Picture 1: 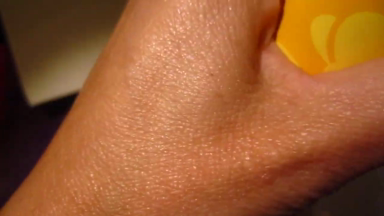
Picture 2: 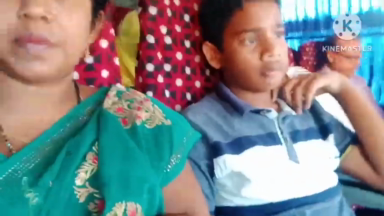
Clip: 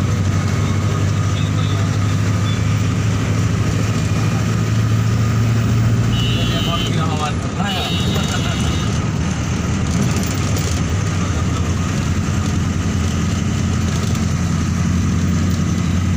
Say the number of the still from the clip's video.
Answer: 2